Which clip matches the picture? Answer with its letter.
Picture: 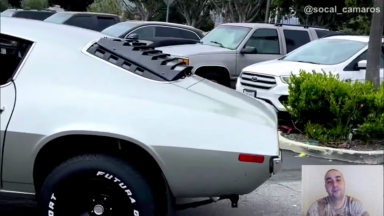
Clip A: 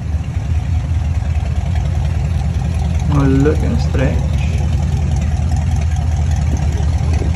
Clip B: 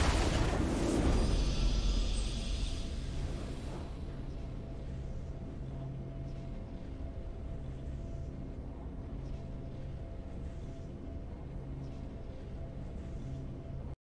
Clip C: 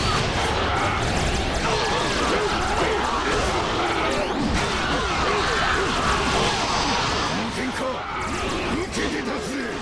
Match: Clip A